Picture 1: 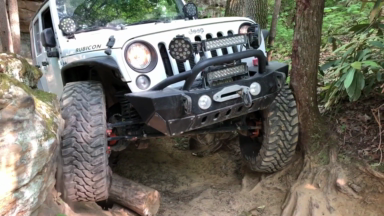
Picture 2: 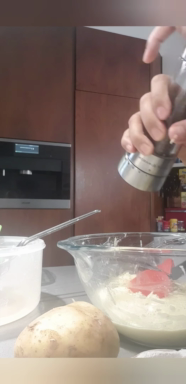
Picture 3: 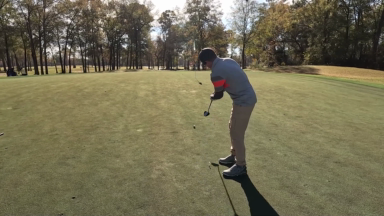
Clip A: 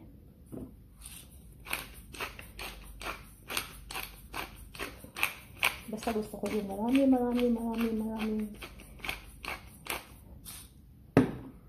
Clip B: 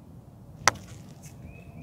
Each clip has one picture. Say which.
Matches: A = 2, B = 3